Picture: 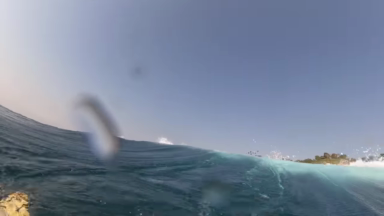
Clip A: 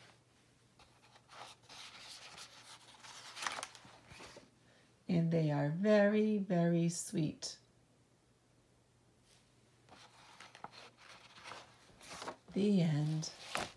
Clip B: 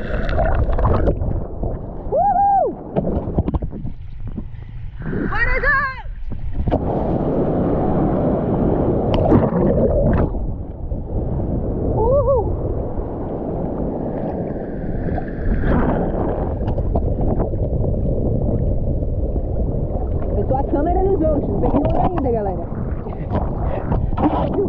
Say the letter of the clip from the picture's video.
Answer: B